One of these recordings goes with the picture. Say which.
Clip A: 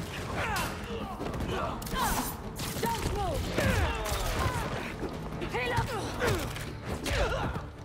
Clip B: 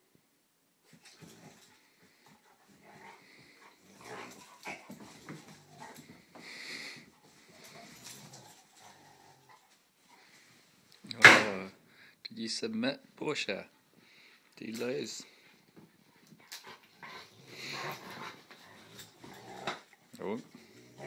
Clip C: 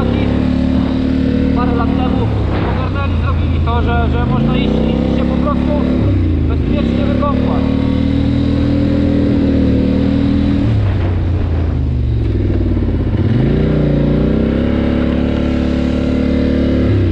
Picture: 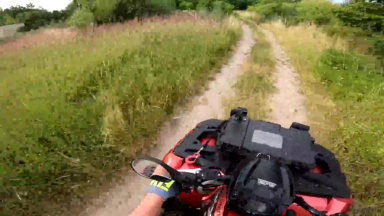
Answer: C